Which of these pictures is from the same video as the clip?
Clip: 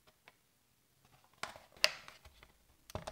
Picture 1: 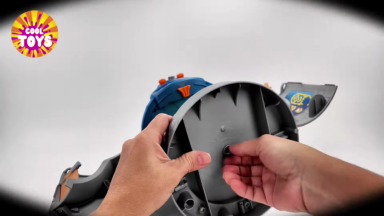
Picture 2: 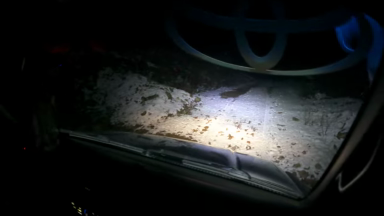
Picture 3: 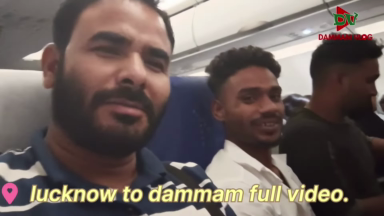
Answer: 1